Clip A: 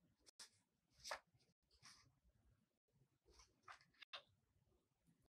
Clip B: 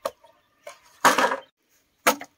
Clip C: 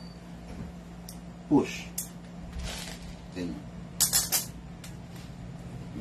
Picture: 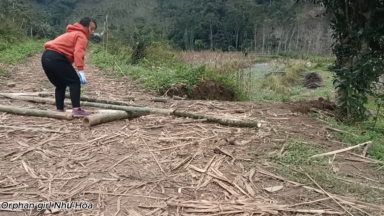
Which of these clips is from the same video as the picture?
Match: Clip B